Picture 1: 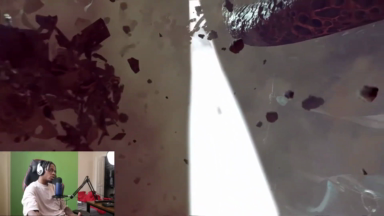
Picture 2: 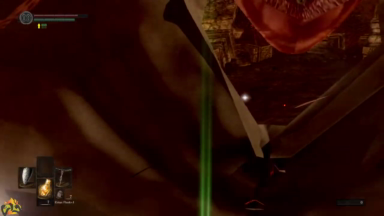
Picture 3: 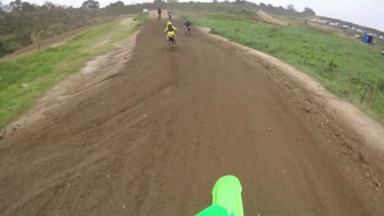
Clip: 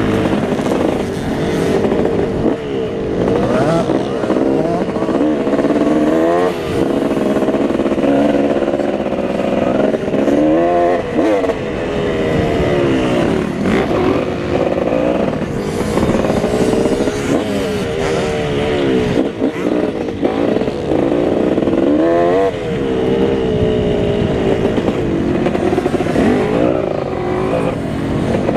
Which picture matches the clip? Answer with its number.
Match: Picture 3